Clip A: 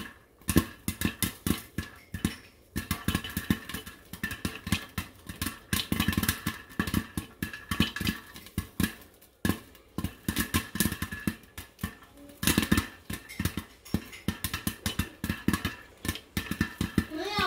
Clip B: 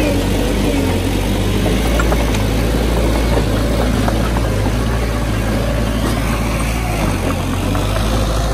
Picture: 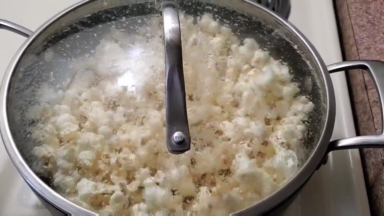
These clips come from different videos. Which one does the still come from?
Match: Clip A